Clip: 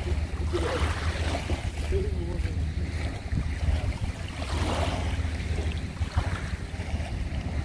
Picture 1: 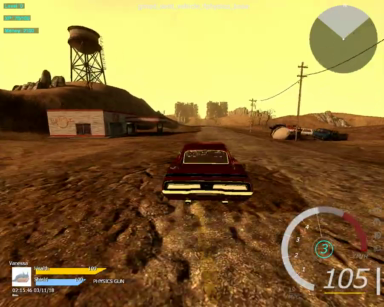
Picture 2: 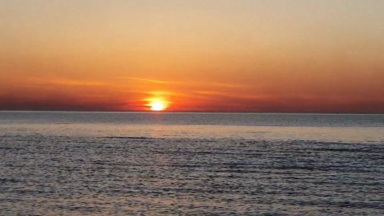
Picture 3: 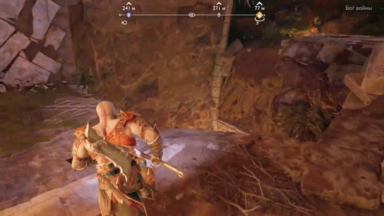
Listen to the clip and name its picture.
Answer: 2